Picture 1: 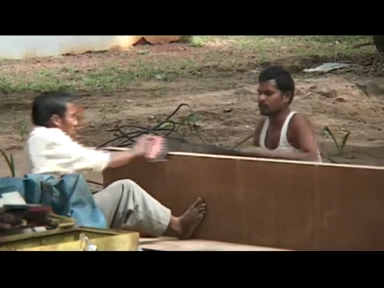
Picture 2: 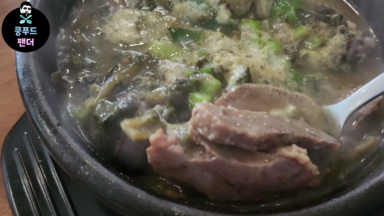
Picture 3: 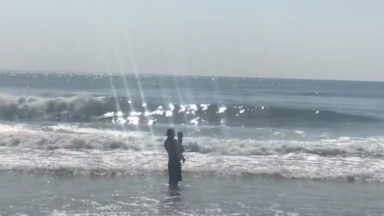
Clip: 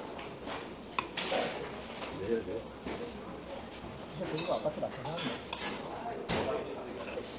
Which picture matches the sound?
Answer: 2